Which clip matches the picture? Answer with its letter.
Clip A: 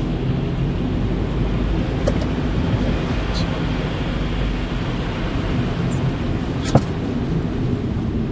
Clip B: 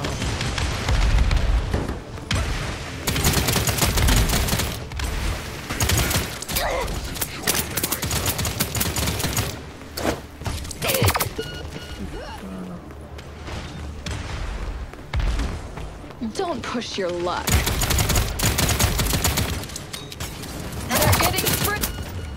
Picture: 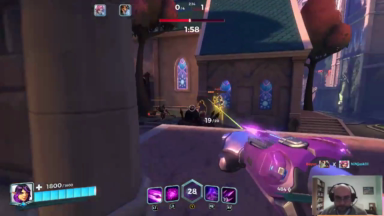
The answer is B